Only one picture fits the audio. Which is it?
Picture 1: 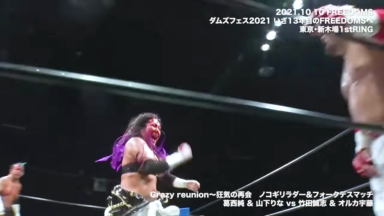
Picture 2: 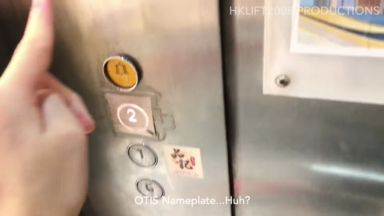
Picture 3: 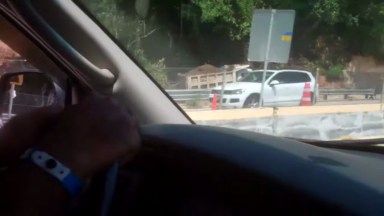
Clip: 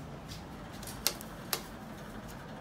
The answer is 2